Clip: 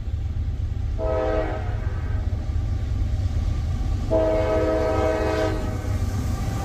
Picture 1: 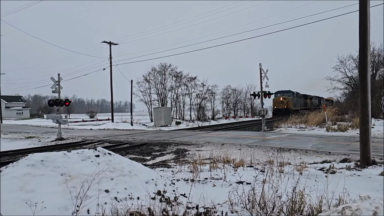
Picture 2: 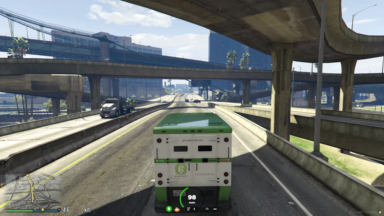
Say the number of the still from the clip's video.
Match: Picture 1